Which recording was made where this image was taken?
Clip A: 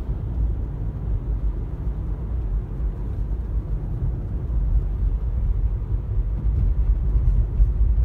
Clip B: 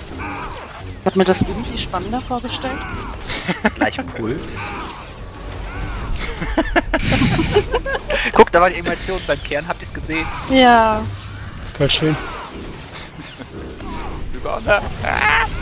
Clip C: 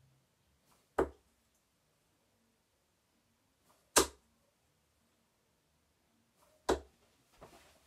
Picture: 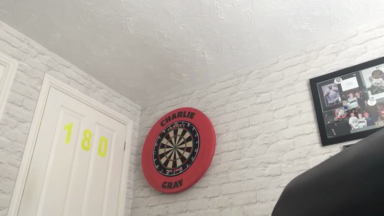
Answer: C